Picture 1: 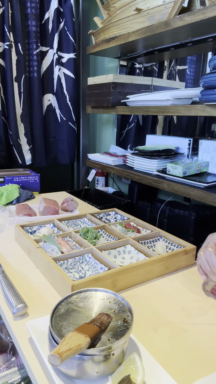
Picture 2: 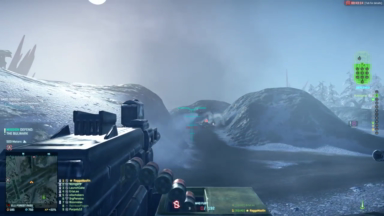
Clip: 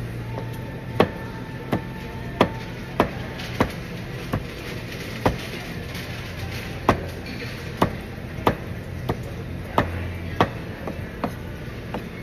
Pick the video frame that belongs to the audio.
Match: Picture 1